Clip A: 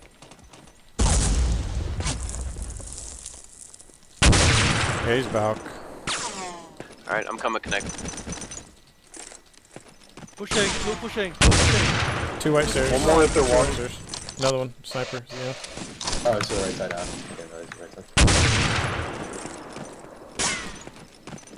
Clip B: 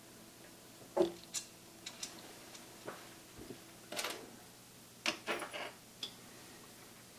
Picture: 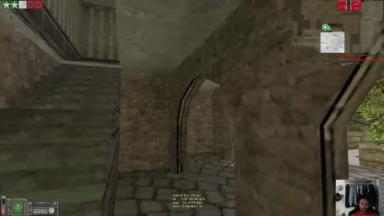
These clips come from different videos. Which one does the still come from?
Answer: A